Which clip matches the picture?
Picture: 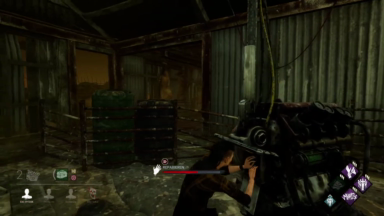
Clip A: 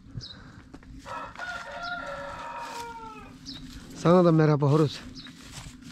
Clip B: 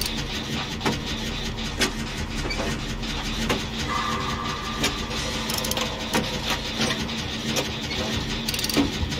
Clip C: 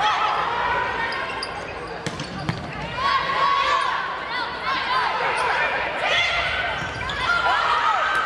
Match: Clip B